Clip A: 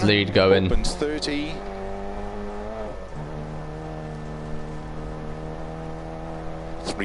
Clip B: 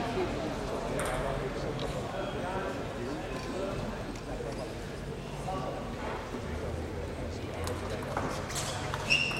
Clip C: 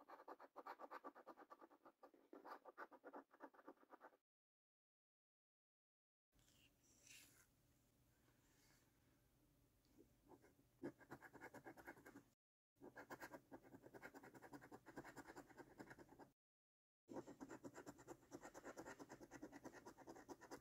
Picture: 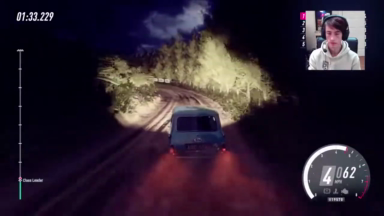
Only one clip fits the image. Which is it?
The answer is A